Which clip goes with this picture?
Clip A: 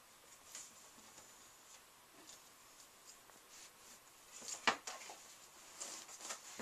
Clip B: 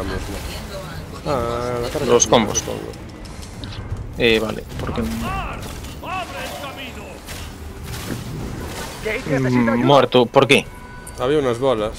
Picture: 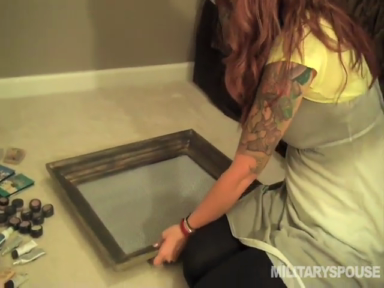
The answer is A